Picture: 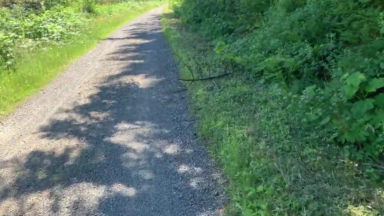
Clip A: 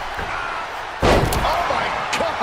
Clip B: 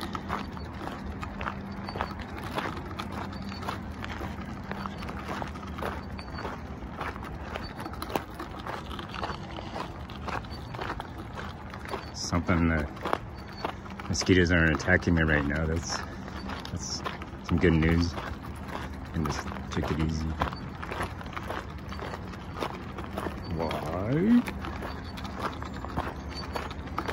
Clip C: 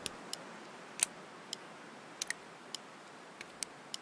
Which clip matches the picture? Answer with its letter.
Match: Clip B